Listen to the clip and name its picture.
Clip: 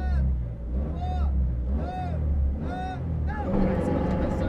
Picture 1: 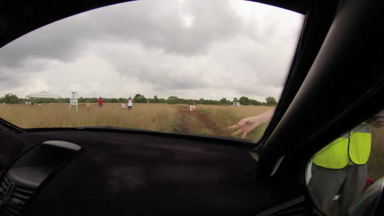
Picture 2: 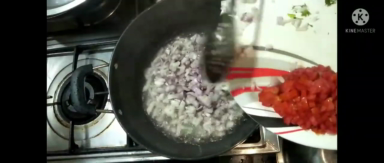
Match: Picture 1